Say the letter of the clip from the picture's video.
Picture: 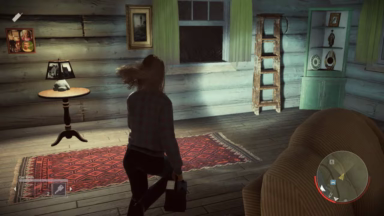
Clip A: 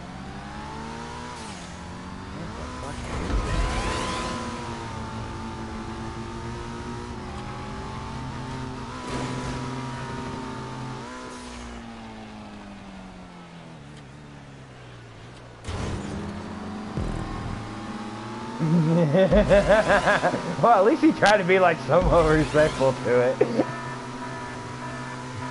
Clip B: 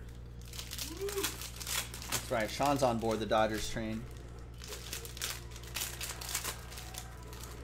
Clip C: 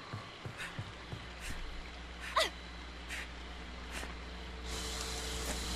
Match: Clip C